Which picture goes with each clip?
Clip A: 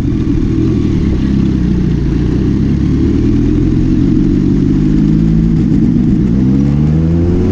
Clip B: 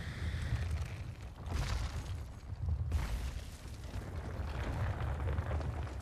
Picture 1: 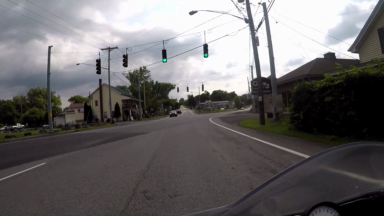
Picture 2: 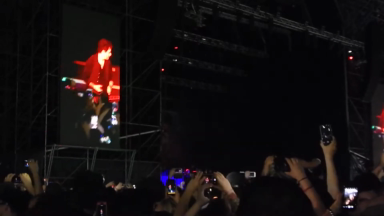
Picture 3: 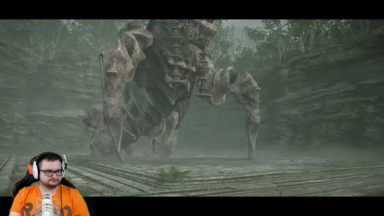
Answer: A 1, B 3